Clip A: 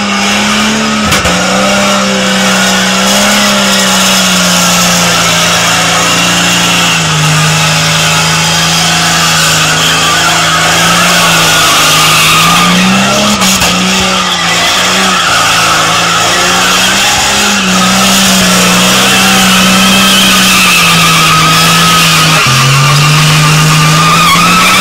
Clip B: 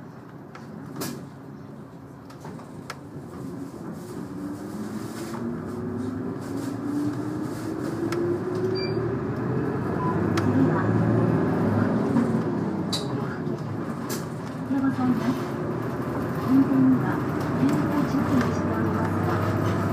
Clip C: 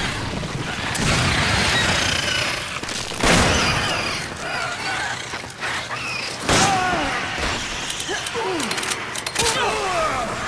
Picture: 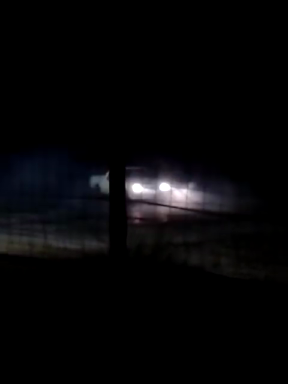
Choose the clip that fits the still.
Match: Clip A